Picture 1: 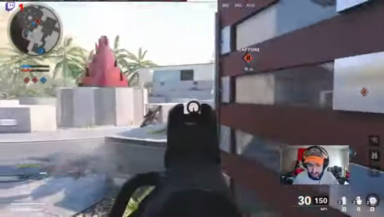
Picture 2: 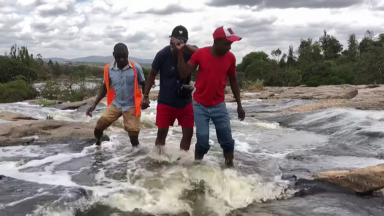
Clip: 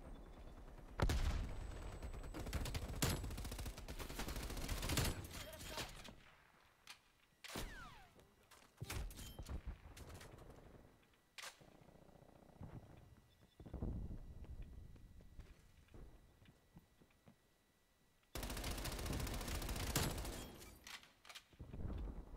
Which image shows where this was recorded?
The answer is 1